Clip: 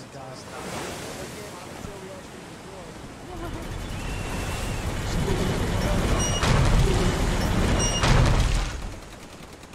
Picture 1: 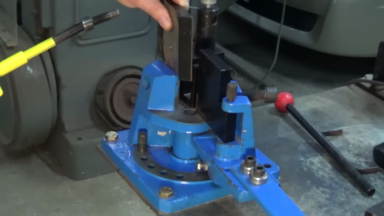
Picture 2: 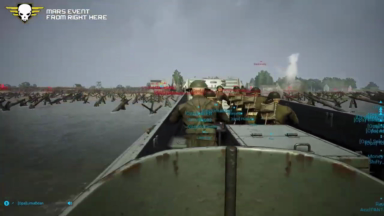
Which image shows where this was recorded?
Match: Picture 2